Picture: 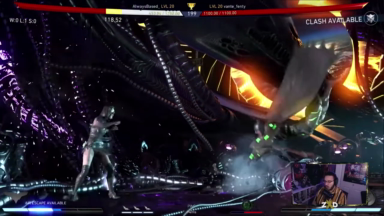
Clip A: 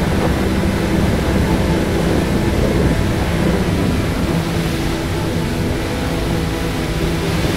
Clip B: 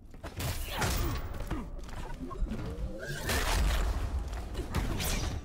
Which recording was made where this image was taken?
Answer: B